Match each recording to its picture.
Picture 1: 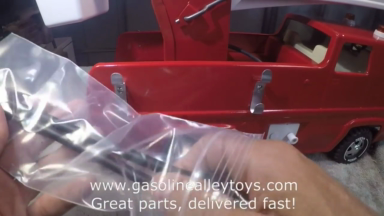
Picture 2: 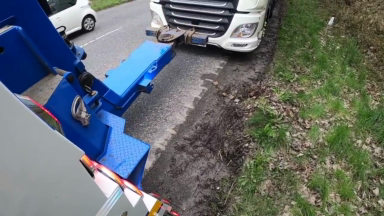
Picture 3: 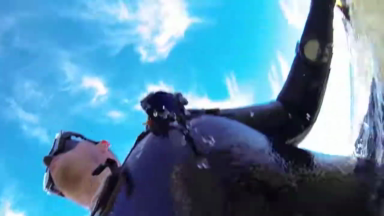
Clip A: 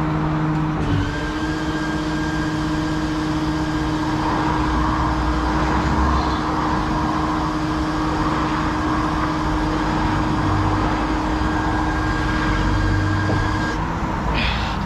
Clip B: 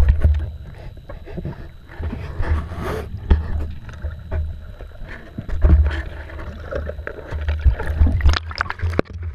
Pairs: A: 2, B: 3